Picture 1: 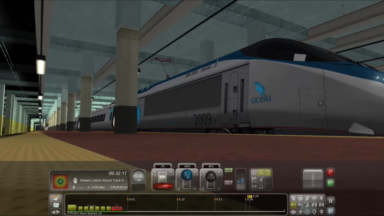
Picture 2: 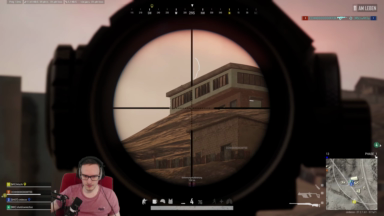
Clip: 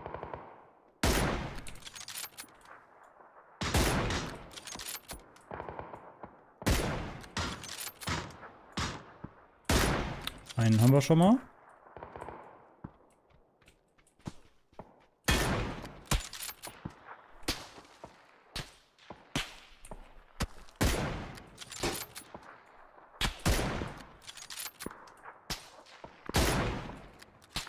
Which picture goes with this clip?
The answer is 2